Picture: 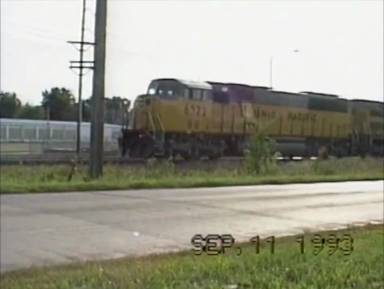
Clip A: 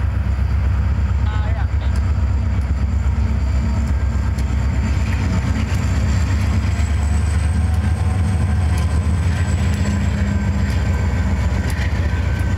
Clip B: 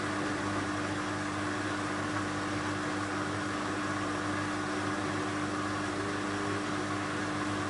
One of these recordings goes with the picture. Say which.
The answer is A